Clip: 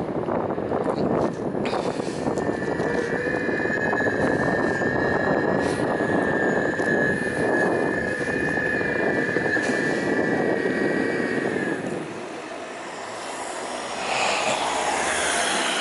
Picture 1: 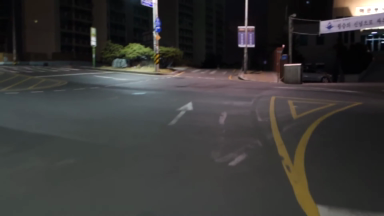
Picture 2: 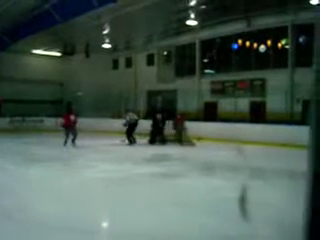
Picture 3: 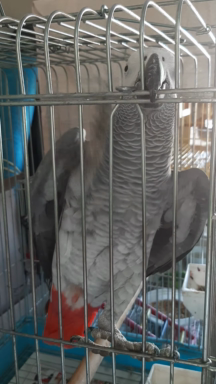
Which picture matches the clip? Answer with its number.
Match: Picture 1